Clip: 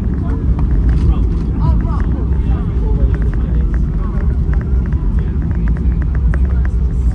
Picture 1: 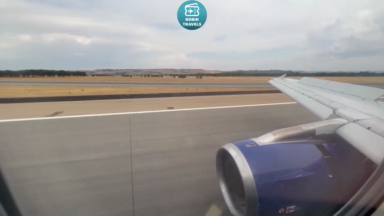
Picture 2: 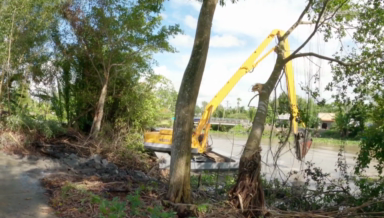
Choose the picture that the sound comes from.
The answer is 1